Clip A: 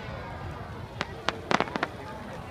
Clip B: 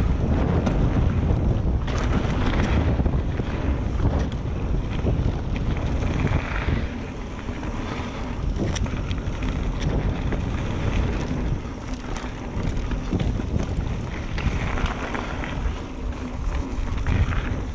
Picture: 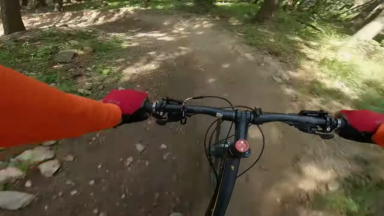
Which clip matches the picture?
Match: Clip B